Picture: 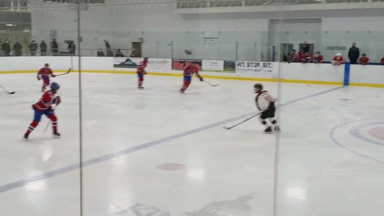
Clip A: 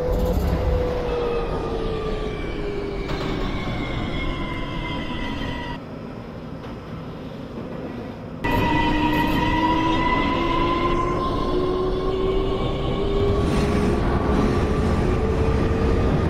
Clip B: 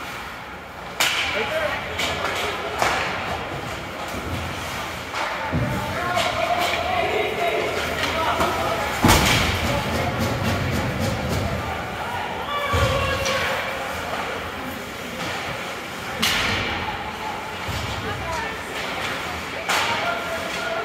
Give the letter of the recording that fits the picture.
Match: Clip B